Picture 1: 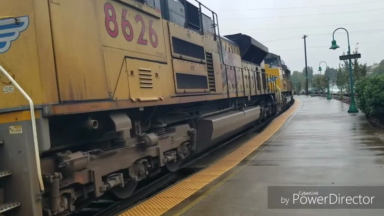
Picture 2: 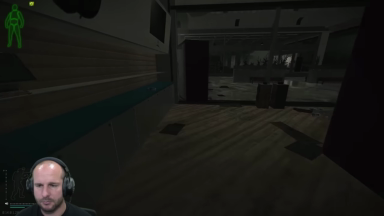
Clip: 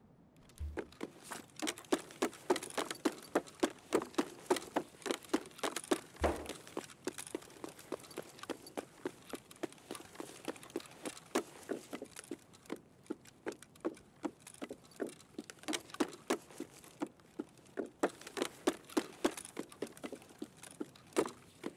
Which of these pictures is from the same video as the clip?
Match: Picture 2